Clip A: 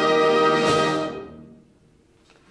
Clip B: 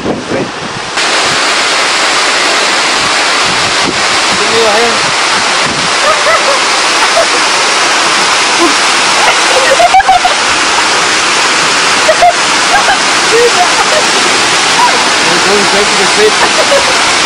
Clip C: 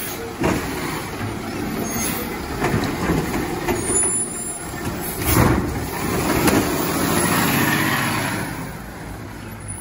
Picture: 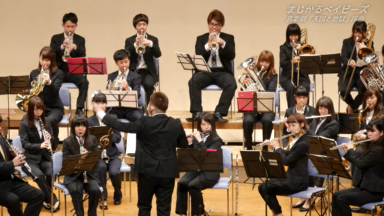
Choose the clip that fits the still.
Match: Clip A